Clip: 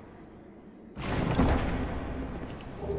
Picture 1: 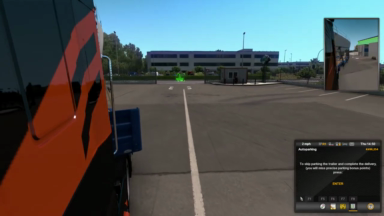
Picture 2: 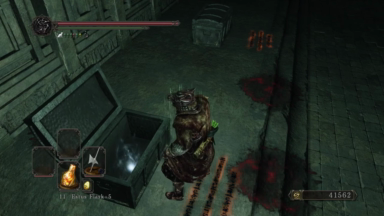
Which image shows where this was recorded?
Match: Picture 2